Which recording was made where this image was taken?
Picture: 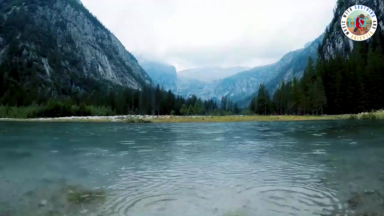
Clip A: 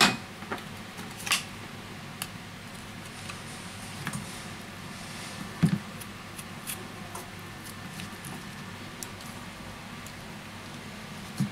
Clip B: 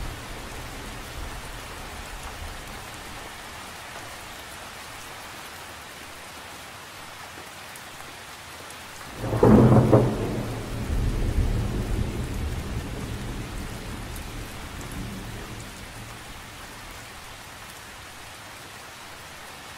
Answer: B